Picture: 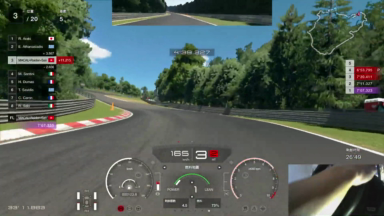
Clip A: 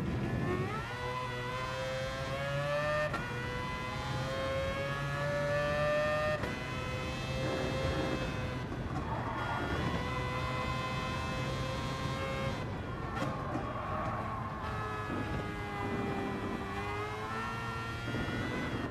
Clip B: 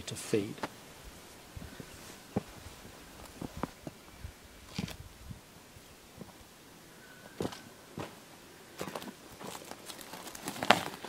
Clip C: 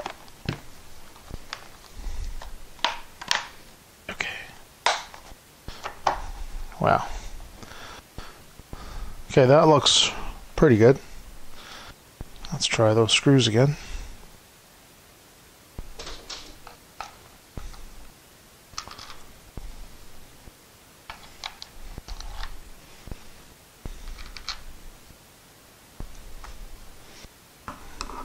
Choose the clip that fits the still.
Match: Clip A